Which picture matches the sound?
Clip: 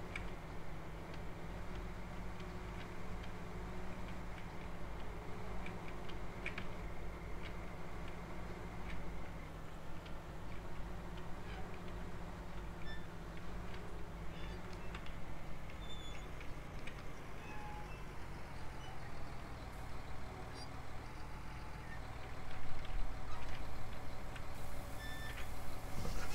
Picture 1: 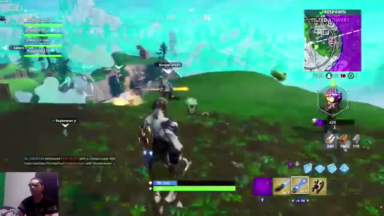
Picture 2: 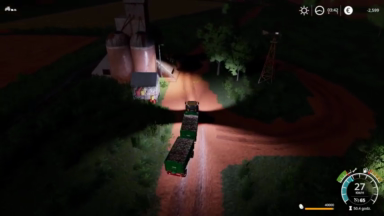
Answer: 2